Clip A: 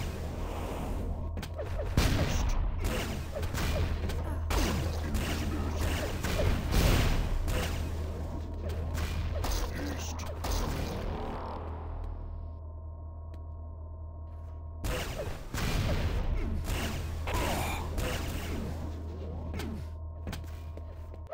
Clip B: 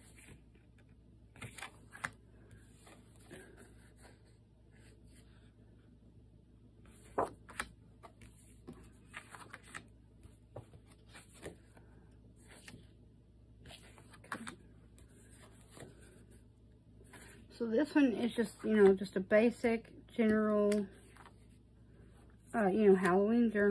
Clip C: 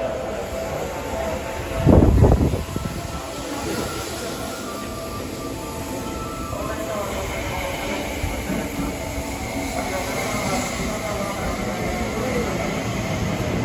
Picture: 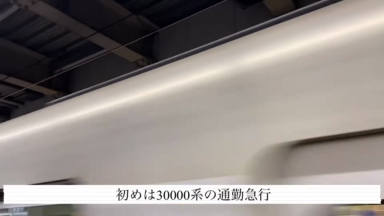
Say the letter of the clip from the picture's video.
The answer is C